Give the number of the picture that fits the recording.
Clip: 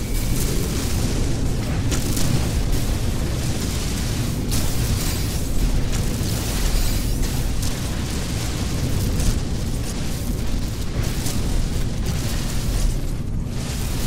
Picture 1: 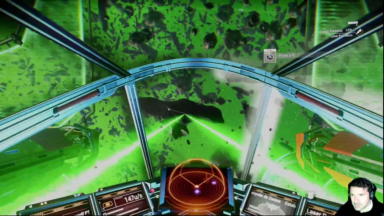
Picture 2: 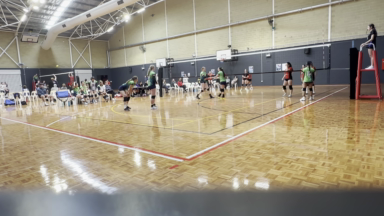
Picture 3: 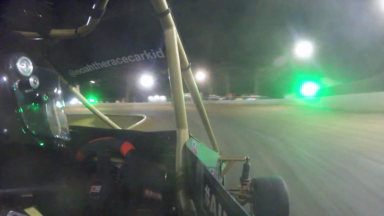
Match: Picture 1